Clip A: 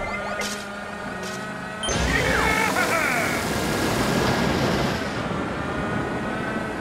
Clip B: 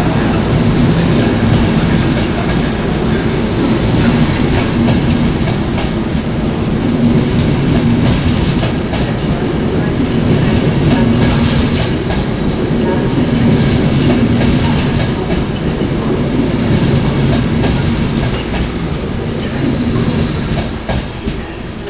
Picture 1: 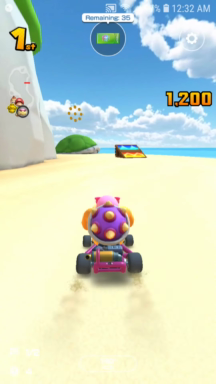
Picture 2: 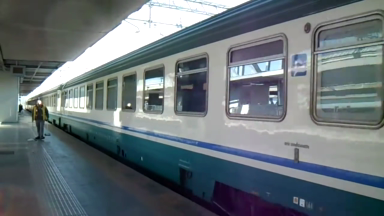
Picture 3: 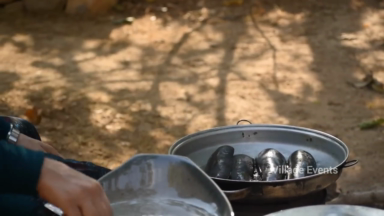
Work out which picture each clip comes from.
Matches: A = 1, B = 2